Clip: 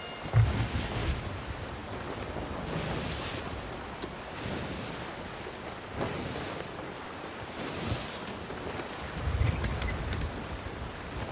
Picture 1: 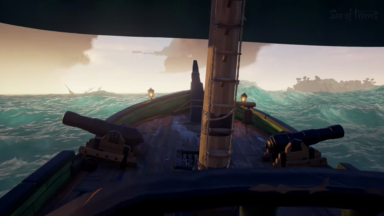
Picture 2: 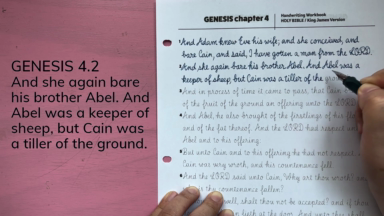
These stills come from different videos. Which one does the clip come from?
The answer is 1